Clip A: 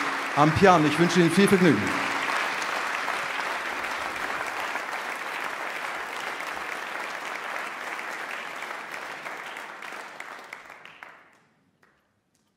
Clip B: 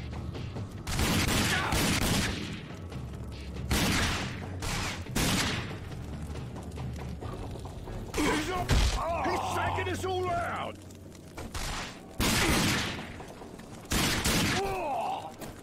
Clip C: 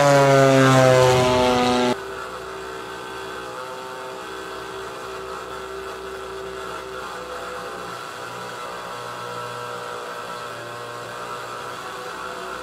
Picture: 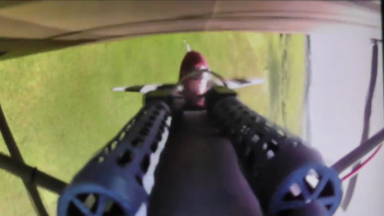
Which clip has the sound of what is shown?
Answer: C